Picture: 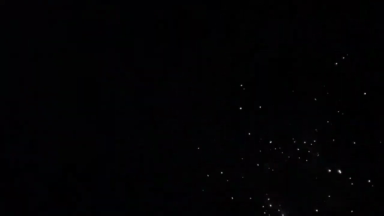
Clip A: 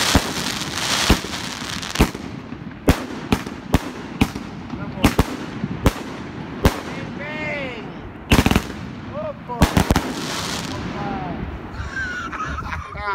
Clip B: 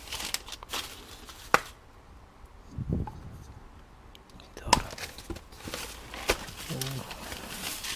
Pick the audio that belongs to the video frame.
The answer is A